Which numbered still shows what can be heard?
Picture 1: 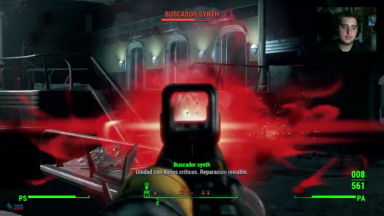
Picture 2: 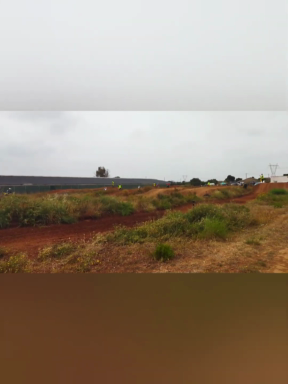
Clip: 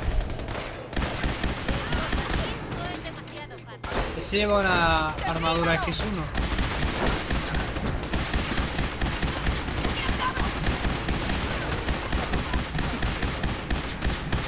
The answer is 1